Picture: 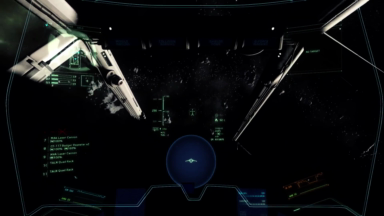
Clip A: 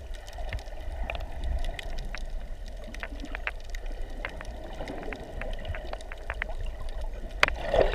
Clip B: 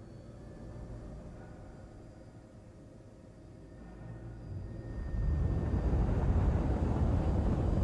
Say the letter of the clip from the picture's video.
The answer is B